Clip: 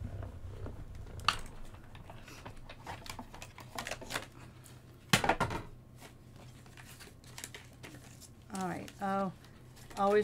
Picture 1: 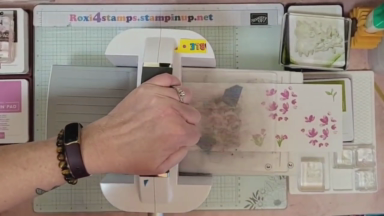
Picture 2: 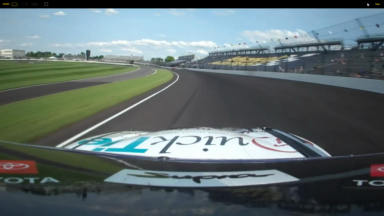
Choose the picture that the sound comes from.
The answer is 1